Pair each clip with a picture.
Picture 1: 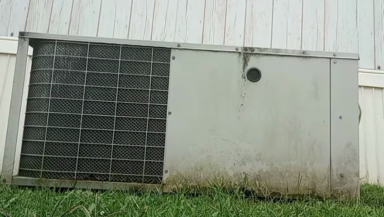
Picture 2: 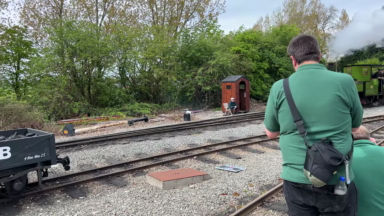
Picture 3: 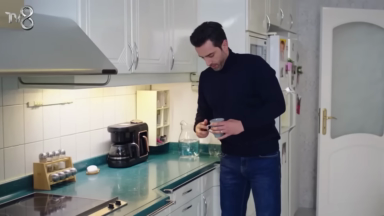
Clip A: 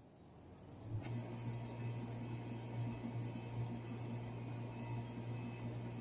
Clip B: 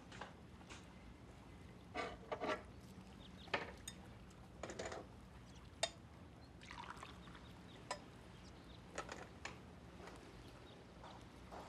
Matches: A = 1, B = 3